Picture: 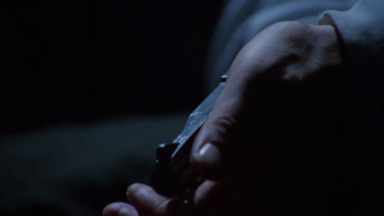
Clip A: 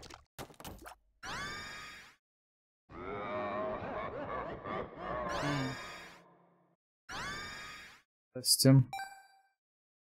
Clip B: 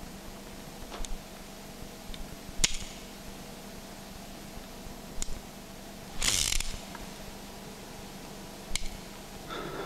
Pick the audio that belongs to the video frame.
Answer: B